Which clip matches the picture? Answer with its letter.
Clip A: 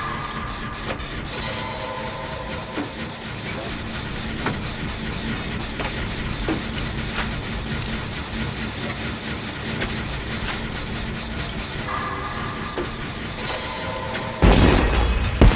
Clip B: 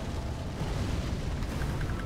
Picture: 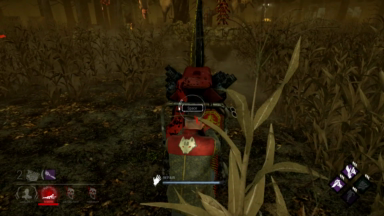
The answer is A